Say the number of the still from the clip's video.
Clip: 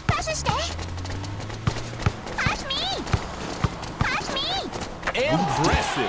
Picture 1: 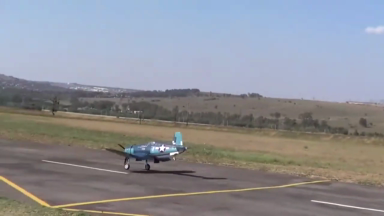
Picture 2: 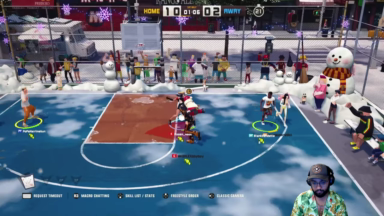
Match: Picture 2